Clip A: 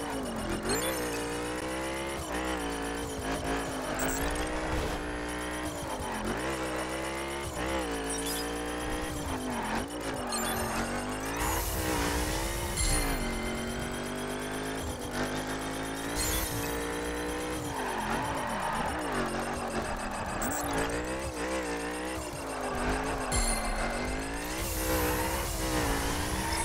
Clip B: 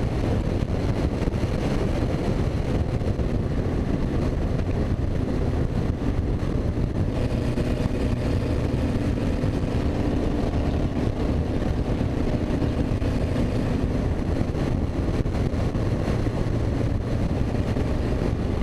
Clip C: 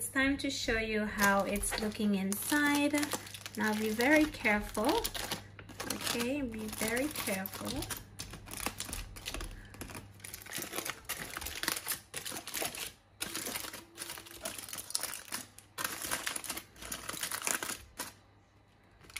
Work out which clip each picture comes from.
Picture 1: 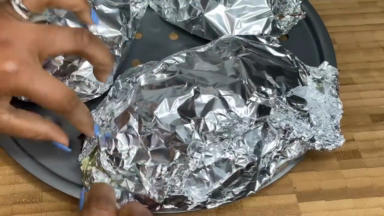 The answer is C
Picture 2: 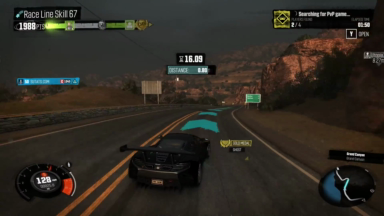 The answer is A